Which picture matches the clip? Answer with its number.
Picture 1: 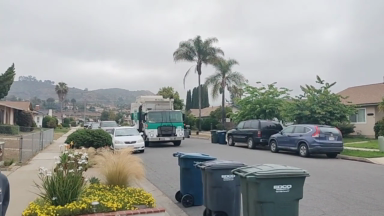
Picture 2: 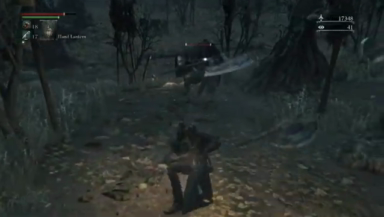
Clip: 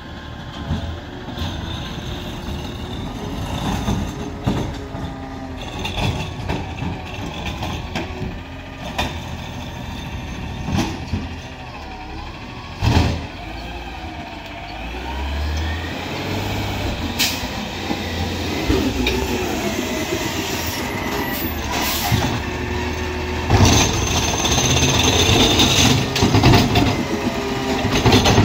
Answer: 1